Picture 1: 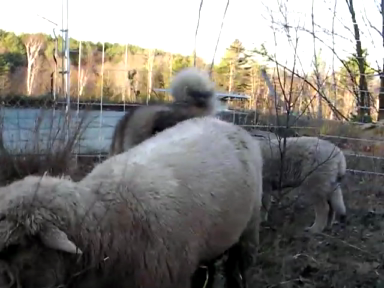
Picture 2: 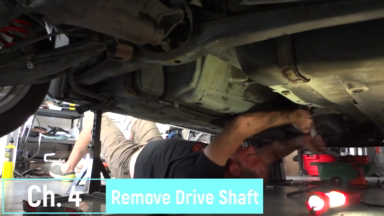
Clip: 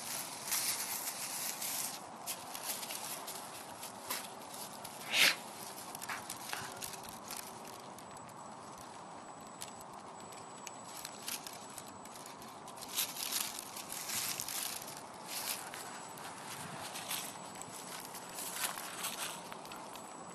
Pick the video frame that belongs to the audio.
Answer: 1